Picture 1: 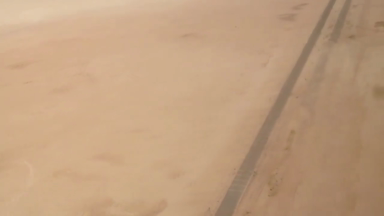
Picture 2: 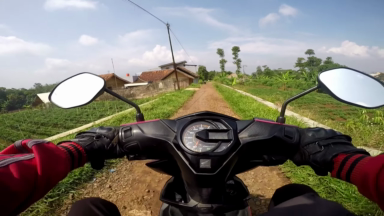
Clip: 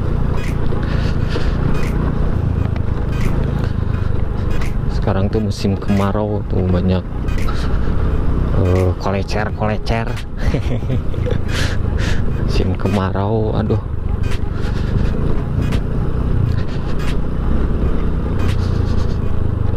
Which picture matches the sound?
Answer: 2